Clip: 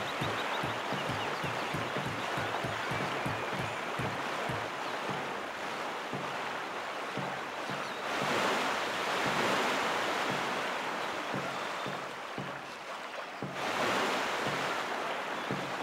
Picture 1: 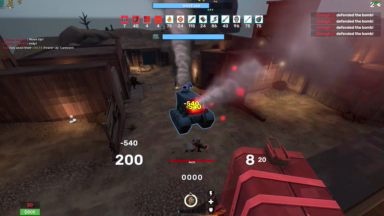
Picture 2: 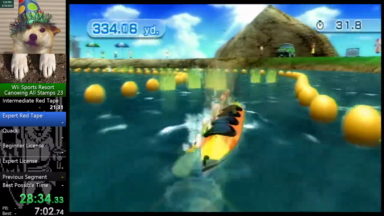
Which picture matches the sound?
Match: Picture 2